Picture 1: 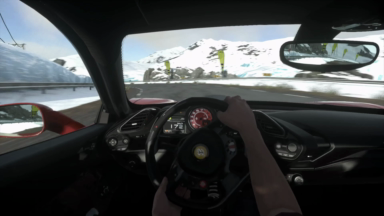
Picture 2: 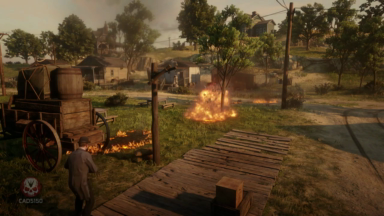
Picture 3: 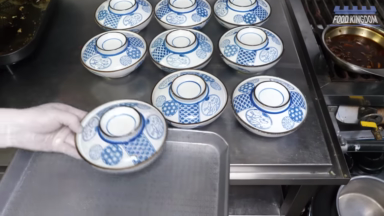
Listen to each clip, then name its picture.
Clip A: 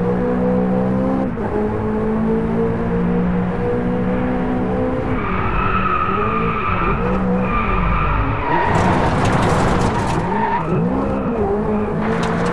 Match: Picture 1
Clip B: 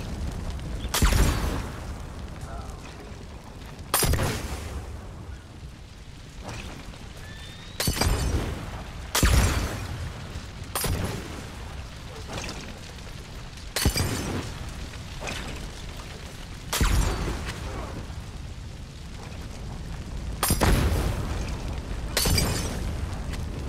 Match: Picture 2